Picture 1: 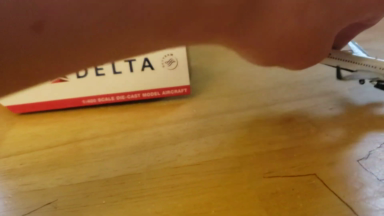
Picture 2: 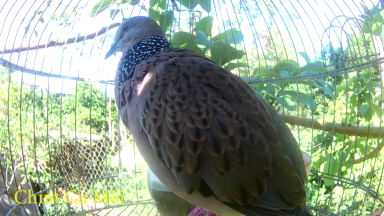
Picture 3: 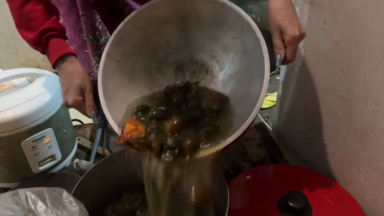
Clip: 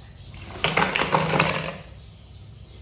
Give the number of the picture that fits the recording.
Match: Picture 3